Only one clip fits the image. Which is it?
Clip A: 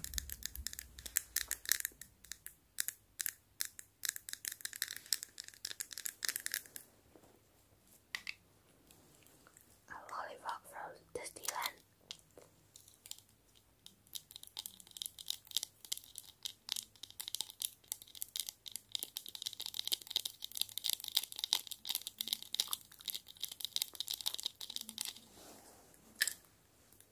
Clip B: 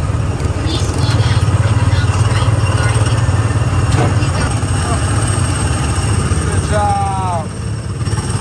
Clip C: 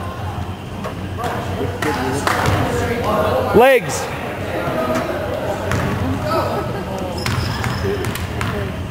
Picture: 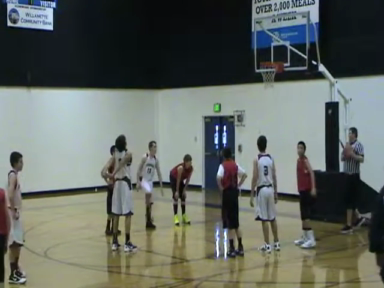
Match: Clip C